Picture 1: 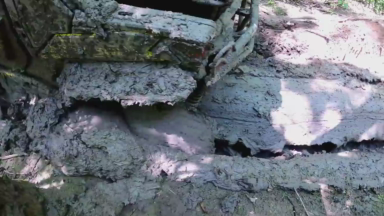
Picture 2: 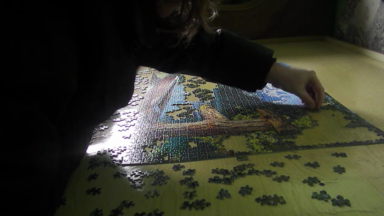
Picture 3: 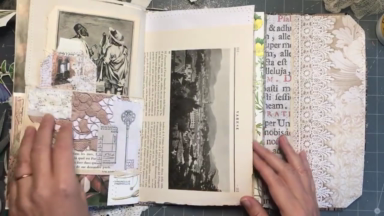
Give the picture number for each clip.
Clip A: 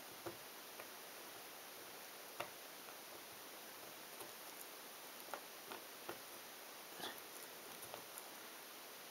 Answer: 2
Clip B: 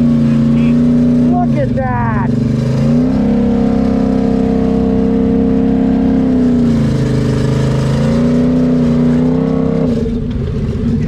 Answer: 1